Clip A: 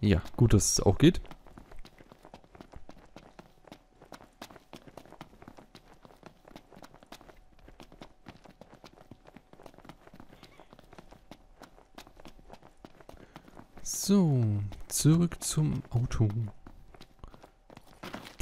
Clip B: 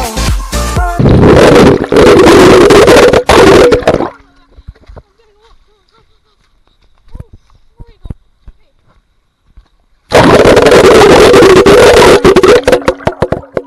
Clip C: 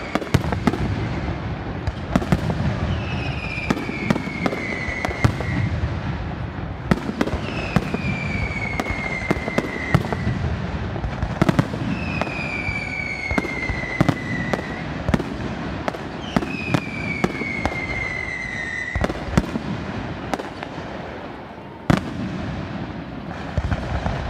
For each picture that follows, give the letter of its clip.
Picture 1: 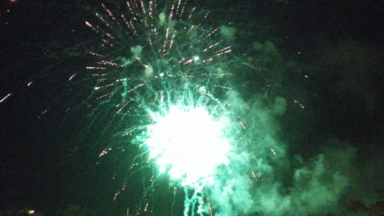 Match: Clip C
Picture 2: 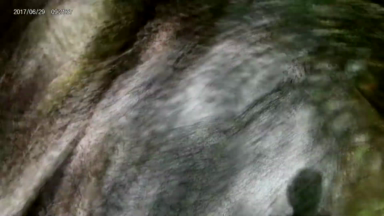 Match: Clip B